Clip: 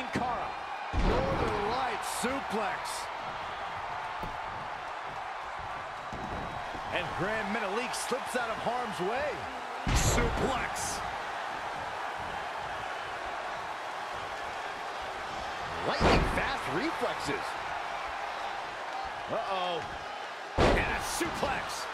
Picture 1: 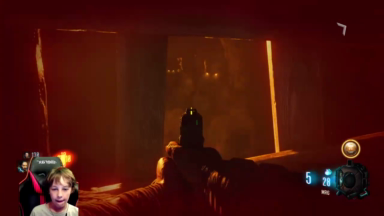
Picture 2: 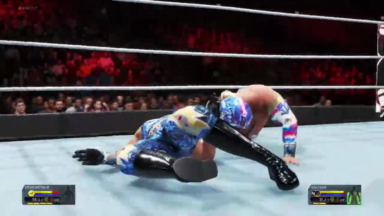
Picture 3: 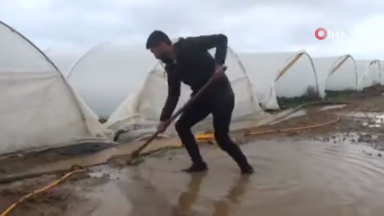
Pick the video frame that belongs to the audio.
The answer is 2